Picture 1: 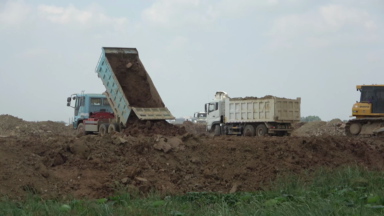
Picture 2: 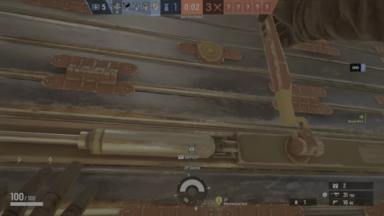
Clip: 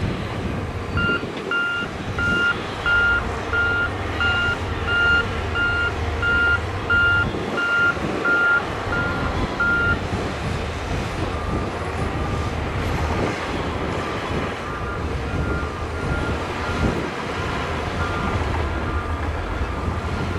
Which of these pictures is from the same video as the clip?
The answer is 1